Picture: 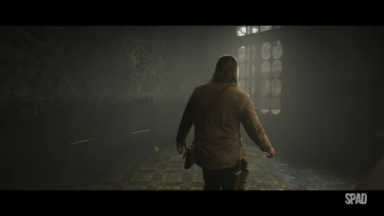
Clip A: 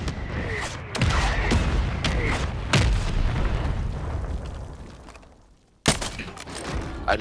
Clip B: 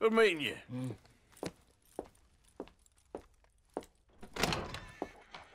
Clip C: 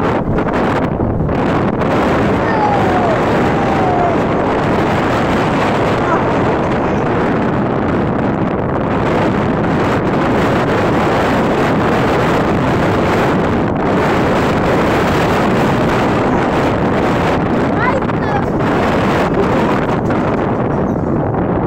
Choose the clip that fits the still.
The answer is B